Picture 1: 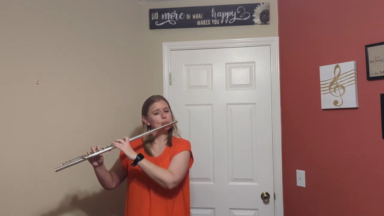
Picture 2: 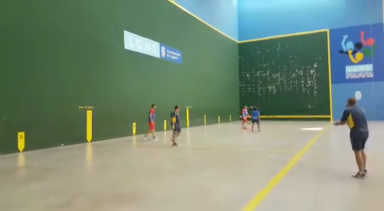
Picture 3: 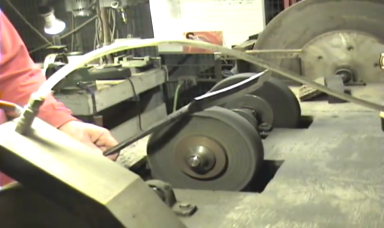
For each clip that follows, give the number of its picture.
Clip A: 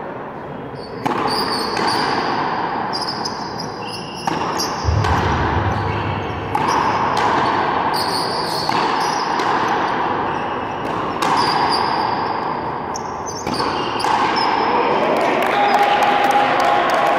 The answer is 2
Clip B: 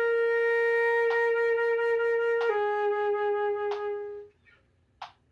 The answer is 1